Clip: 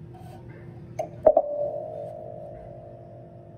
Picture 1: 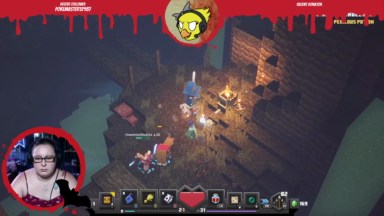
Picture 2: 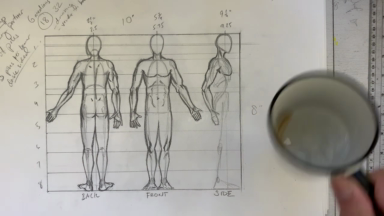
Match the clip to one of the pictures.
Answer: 2